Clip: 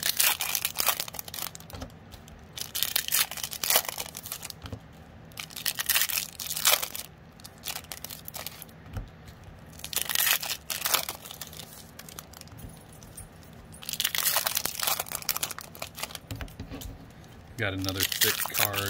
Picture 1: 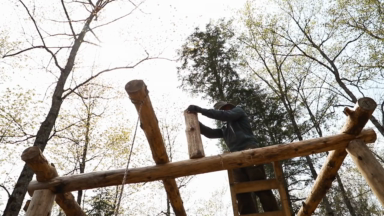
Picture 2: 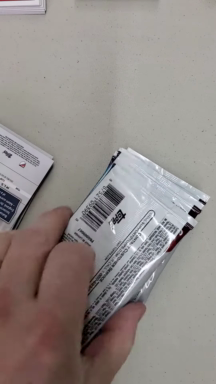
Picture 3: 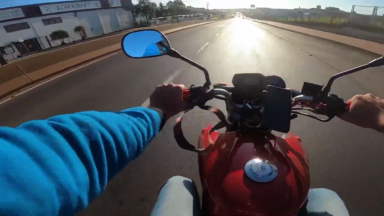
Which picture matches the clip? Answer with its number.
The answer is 2